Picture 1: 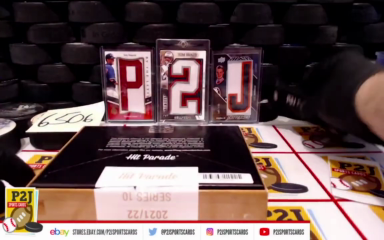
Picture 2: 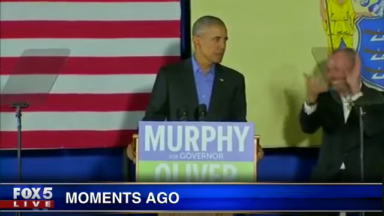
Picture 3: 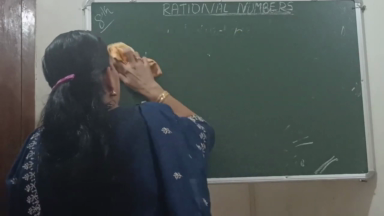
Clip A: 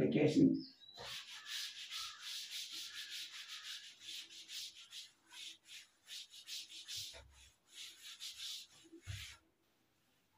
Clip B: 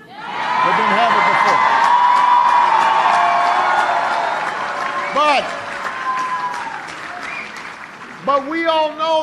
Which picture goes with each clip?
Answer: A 3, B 2